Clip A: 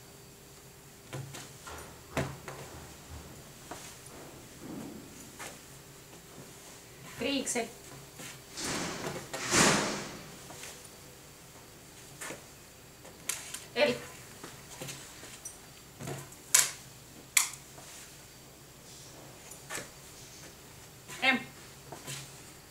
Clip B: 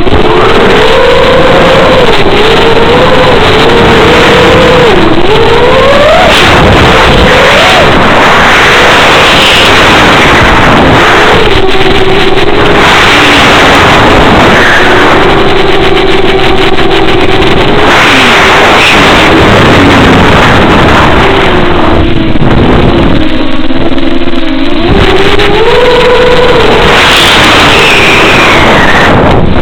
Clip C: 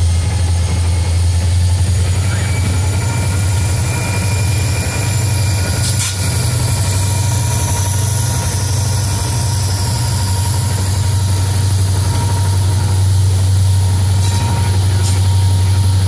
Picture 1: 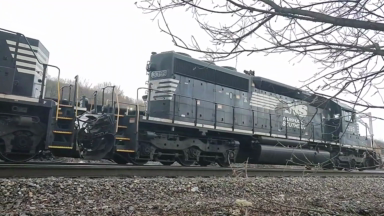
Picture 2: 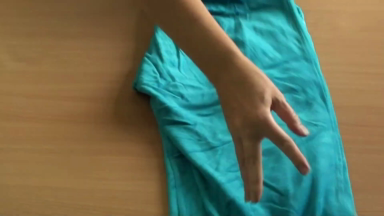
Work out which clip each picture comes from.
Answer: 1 C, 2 A